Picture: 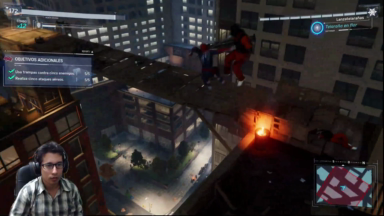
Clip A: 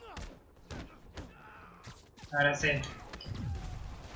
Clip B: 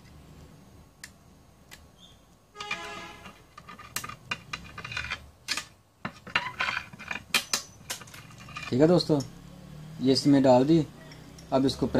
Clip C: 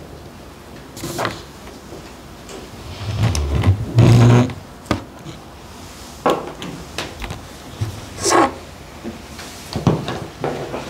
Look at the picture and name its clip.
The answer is A